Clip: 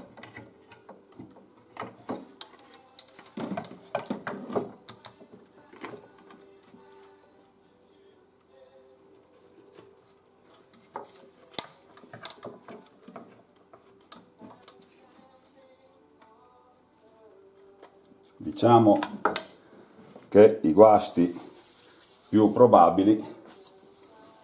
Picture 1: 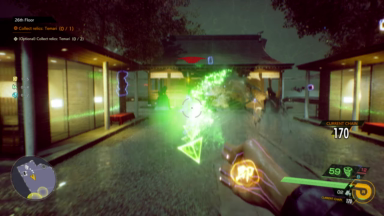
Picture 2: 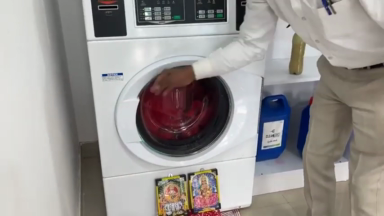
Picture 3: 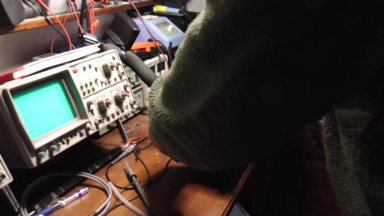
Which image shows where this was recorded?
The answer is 3